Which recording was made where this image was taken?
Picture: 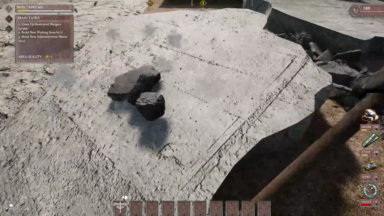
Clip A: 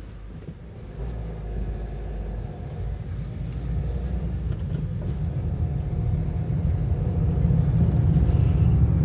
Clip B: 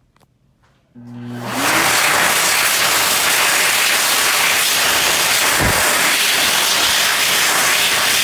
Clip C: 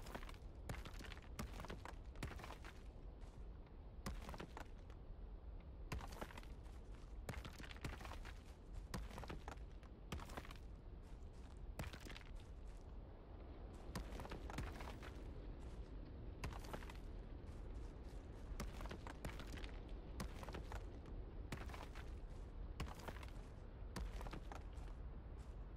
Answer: C